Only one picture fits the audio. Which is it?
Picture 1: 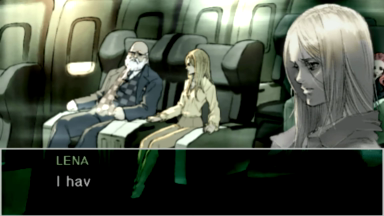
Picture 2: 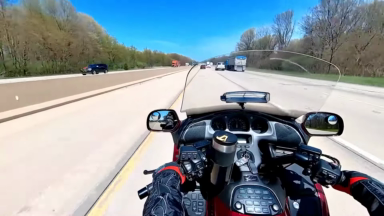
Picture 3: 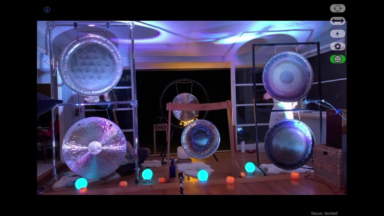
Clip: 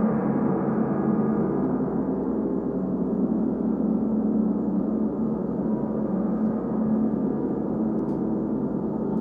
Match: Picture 3